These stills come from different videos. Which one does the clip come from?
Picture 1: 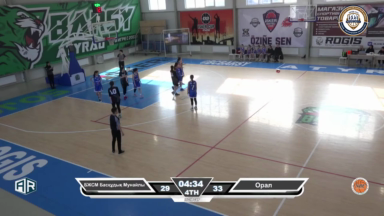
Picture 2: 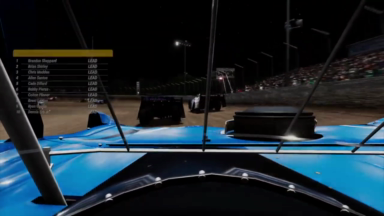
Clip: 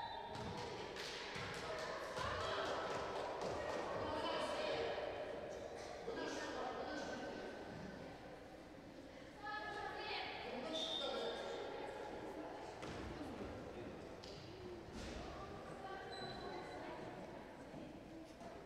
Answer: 1